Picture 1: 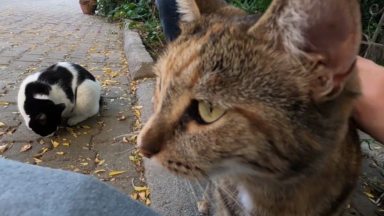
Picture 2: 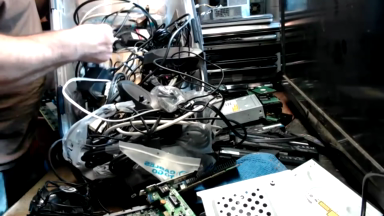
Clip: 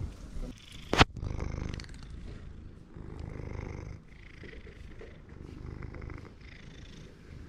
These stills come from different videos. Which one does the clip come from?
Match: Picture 1